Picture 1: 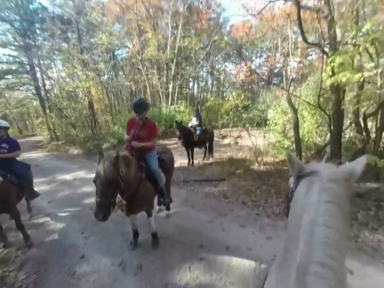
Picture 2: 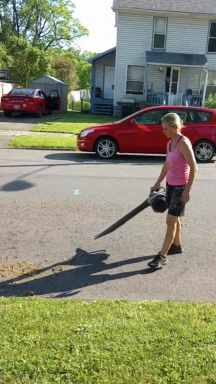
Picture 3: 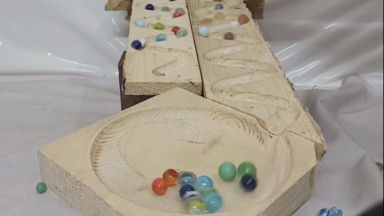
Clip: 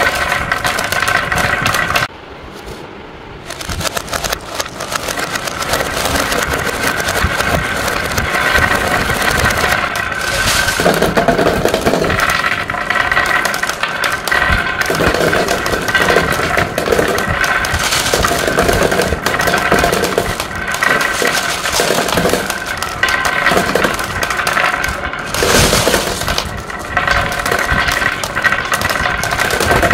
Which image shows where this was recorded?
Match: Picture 3